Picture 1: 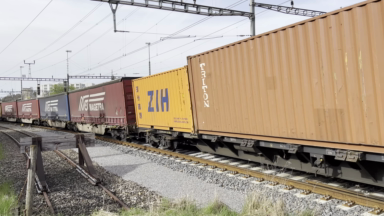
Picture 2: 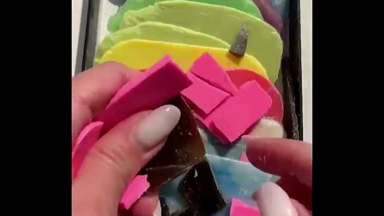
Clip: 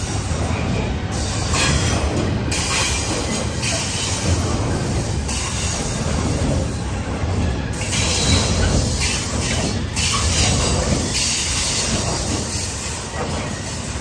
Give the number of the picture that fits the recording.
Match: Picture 1